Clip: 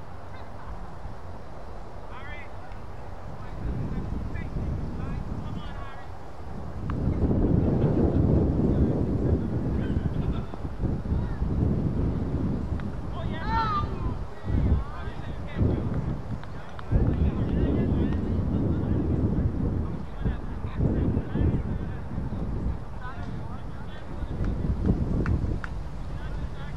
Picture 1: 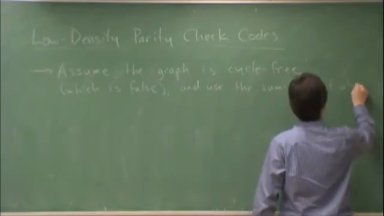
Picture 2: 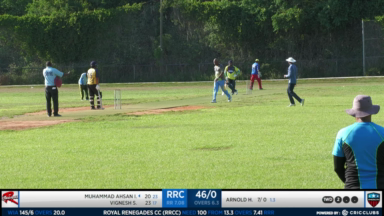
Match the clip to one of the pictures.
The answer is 2